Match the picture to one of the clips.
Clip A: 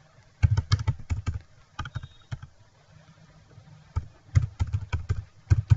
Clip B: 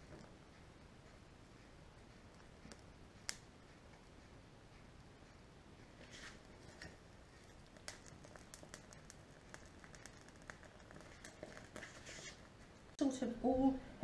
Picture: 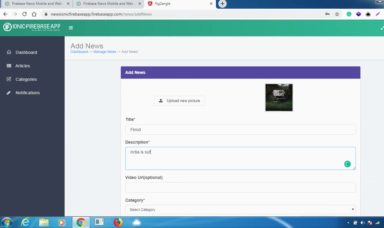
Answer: A